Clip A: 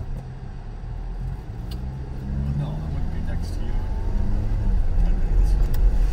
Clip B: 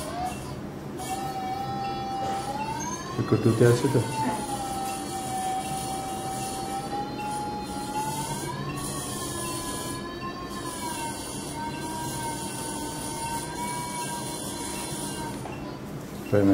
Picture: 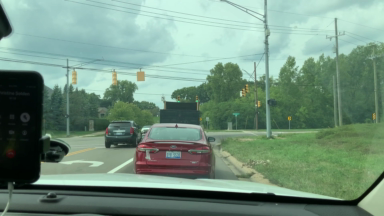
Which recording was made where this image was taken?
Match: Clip A